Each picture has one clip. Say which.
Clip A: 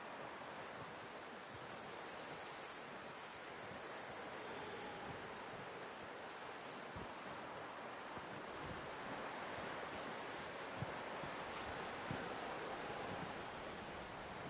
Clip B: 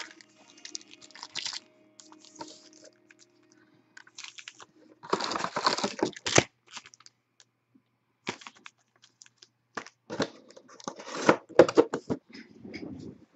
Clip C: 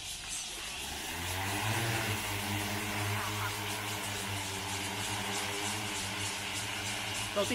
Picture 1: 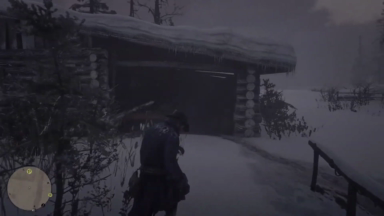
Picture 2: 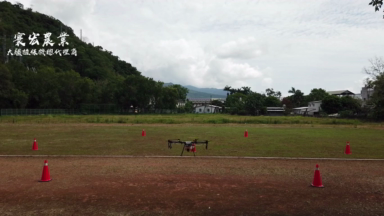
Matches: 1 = A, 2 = C